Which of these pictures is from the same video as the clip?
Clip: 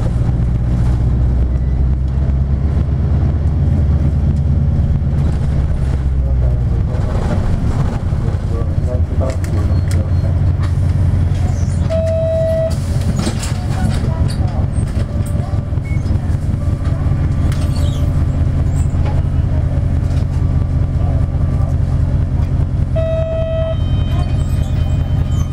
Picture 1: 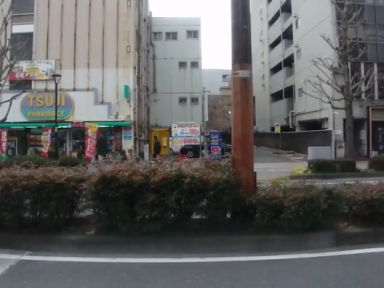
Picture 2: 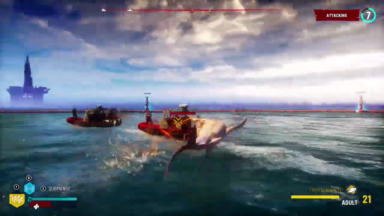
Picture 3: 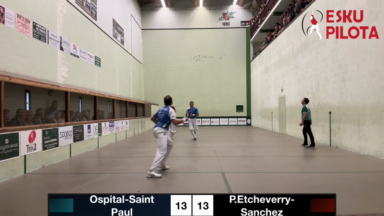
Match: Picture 1